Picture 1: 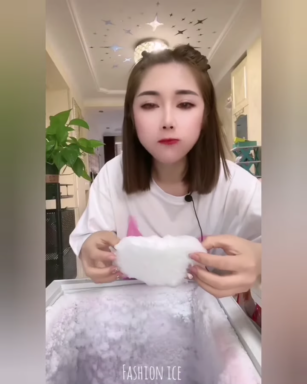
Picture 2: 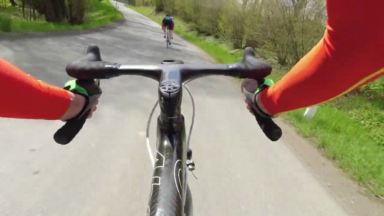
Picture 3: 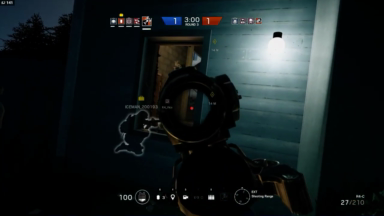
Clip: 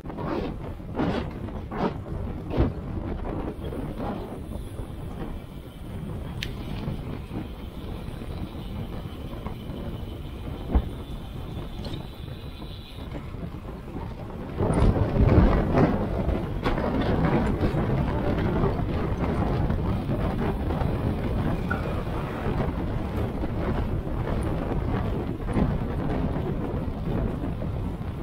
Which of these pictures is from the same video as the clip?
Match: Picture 2